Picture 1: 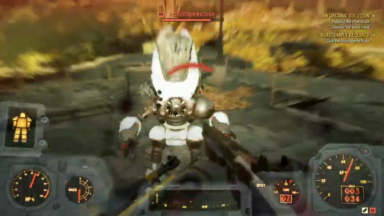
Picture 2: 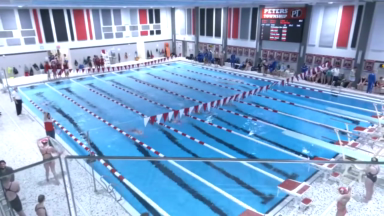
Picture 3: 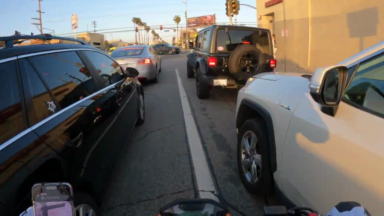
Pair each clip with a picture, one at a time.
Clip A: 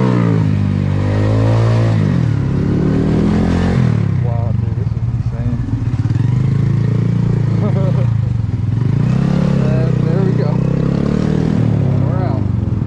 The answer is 3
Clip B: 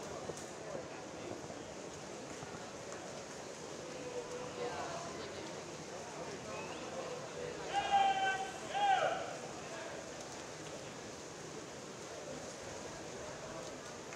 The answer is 2